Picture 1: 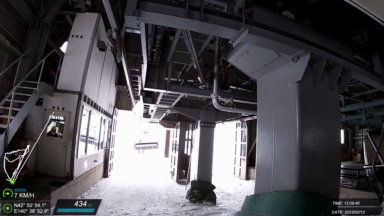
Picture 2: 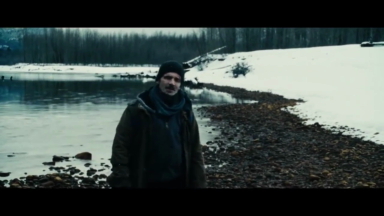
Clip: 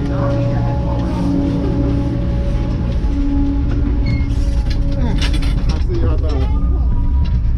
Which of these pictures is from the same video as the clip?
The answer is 1